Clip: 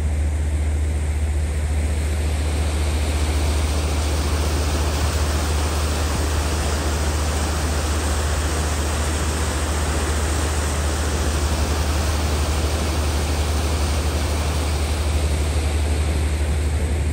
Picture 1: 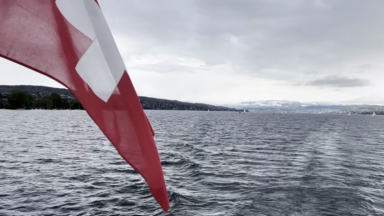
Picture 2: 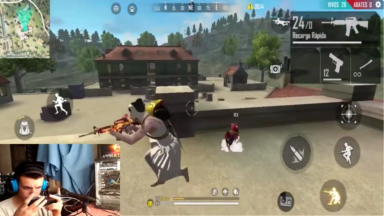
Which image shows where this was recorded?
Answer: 1